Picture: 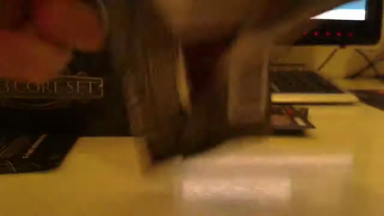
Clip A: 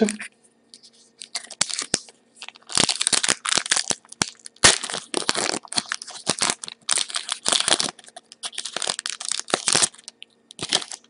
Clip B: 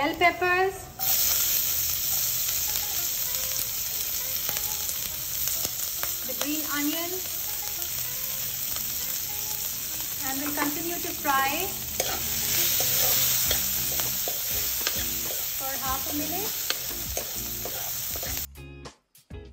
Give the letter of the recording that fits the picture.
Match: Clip A